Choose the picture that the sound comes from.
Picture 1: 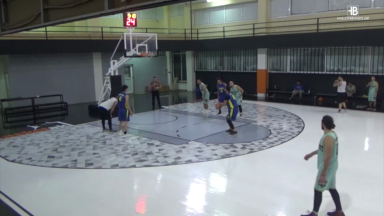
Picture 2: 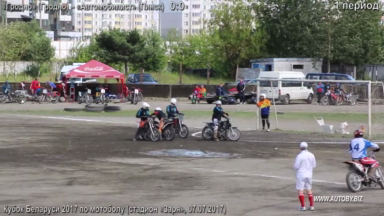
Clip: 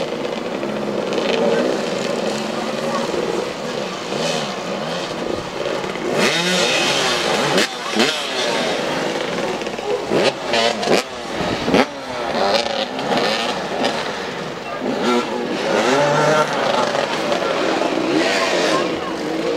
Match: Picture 2